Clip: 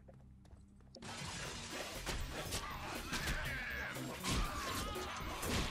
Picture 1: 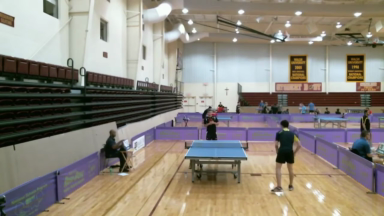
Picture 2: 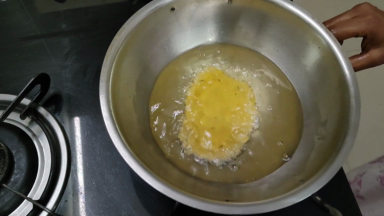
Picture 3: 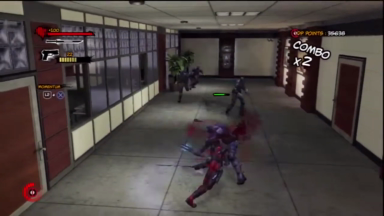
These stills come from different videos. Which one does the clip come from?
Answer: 3